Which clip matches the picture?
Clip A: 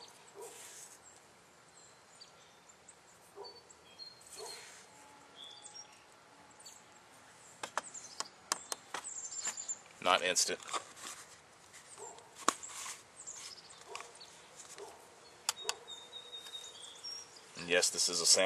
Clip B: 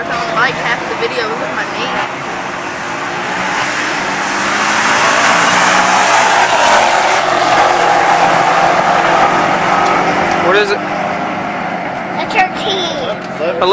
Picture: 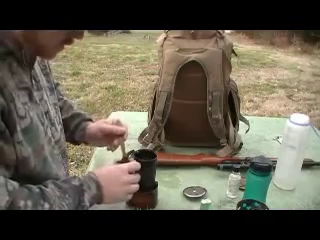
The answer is A